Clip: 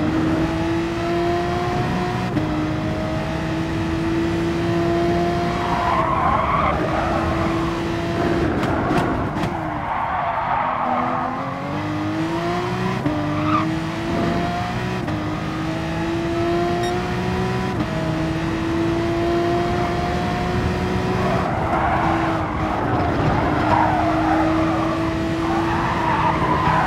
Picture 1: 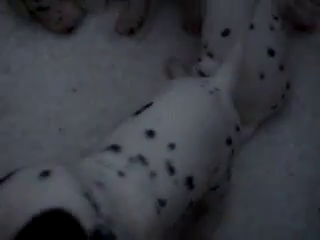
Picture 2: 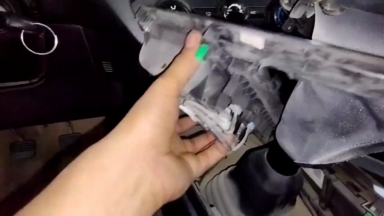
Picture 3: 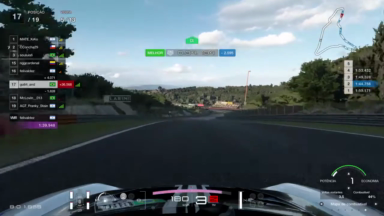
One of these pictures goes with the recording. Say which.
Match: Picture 3